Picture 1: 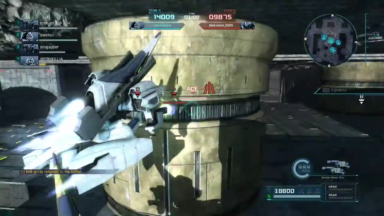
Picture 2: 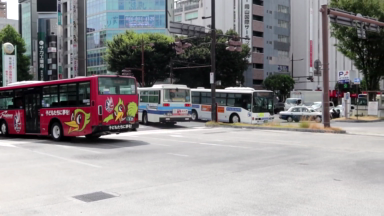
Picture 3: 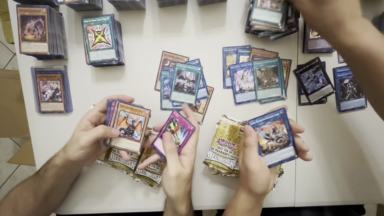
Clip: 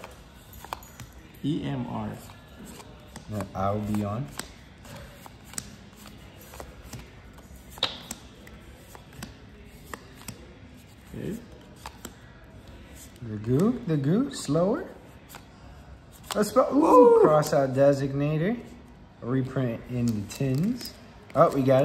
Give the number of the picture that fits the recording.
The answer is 3